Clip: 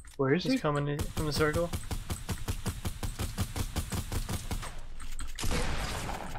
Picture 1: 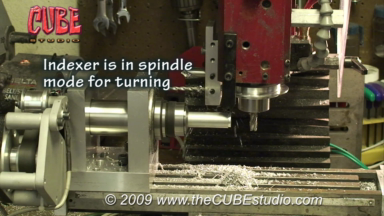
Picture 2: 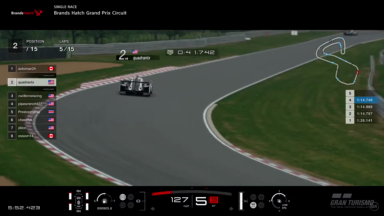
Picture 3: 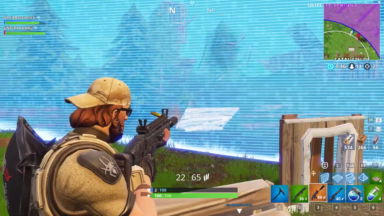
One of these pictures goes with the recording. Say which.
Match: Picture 3